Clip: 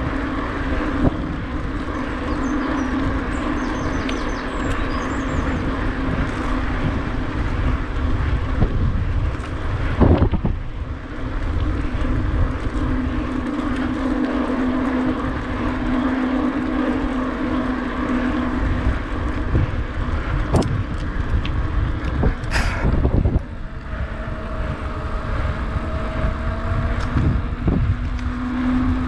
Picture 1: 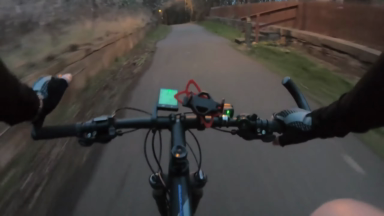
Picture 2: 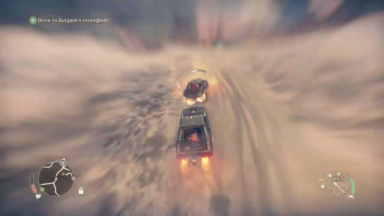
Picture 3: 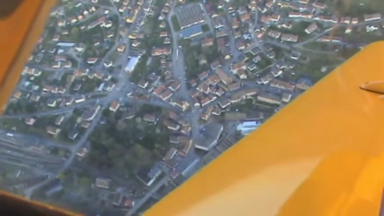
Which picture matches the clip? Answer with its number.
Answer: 1